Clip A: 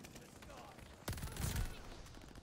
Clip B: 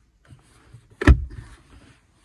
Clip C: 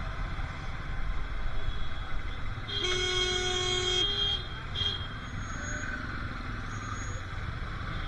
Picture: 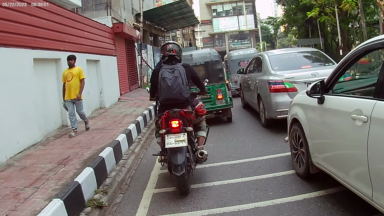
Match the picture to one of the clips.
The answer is C